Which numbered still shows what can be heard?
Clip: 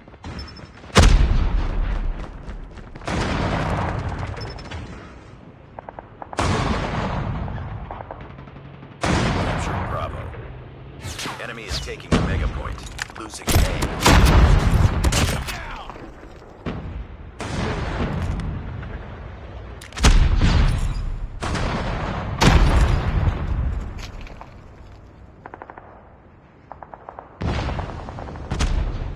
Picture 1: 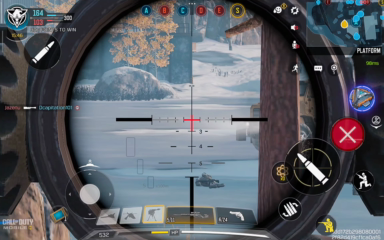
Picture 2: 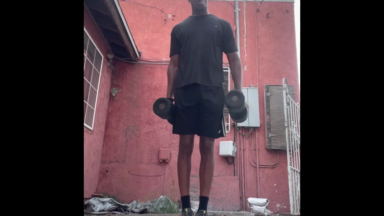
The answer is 1